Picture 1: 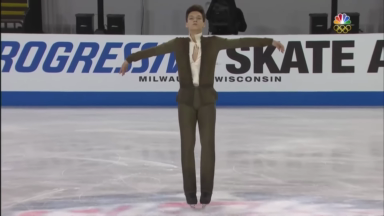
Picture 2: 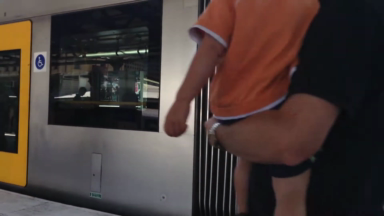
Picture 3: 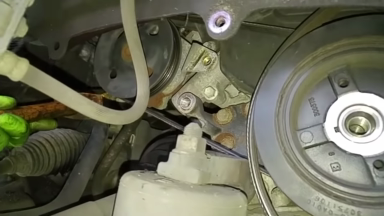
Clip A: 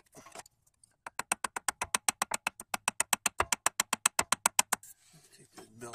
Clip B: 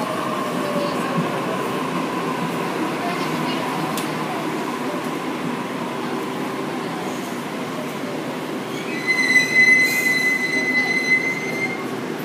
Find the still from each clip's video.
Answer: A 3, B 2